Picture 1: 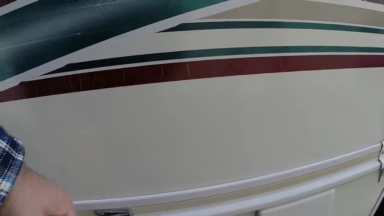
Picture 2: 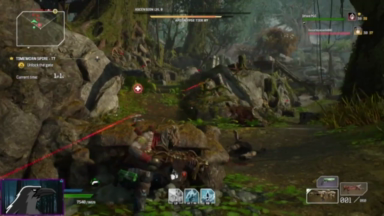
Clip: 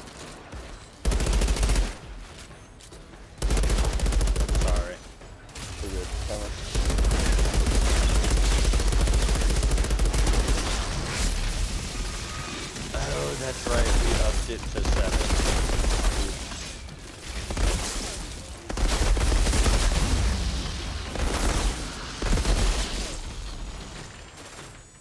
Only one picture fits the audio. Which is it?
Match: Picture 2